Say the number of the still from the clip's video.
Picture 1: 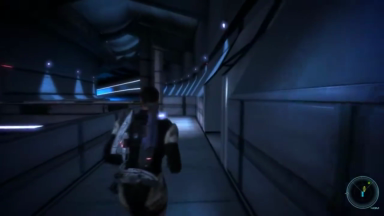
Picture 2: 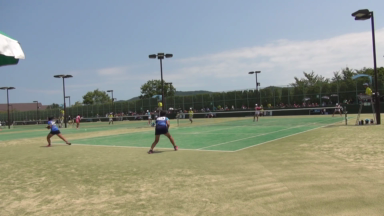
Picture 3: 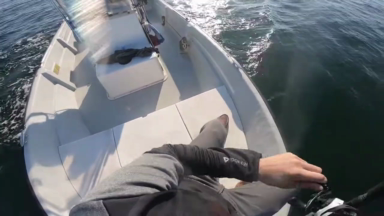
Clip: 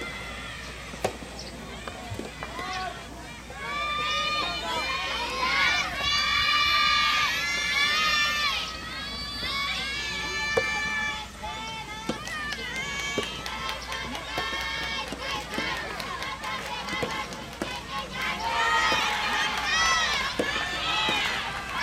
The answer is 2